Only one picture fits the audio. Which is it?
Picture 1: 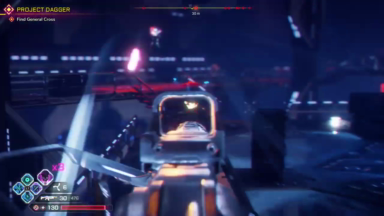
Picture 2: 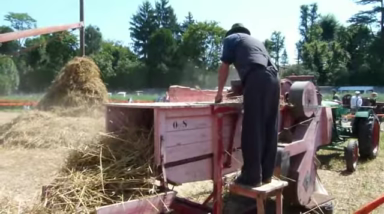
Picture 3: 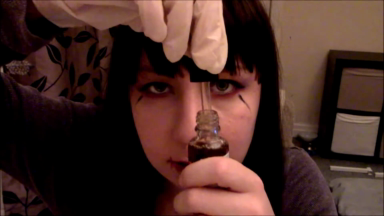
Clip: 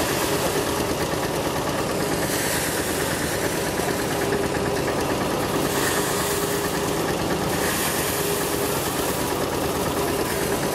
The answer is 2